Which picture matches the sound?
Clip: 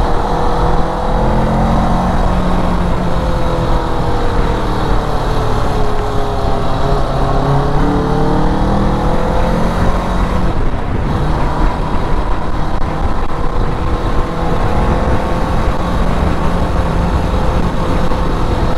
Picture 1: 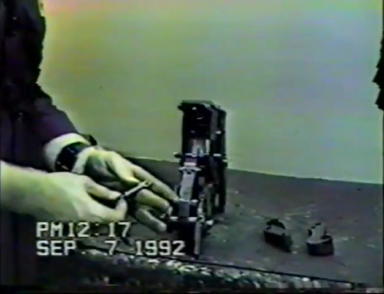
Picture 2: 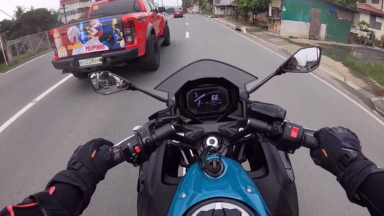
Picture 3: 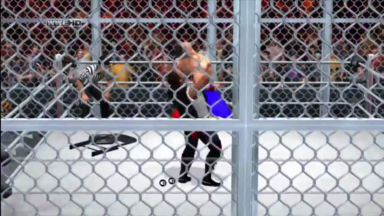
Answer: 2